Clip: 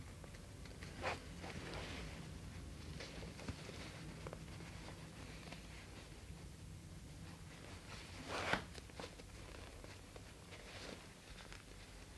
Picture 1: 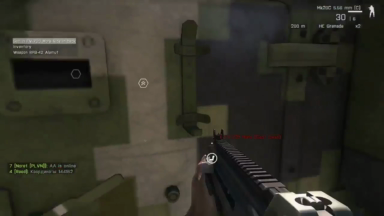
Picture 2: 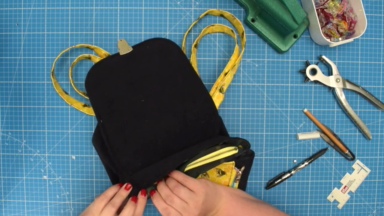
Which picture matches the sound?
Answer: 2